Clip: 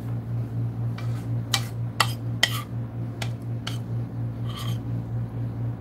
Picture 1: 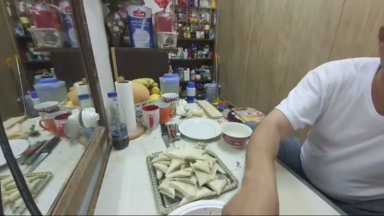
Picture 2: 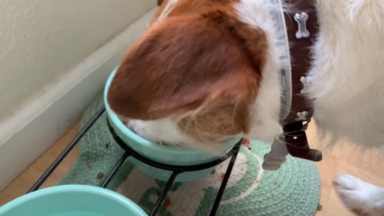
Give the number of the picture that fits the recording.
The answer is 1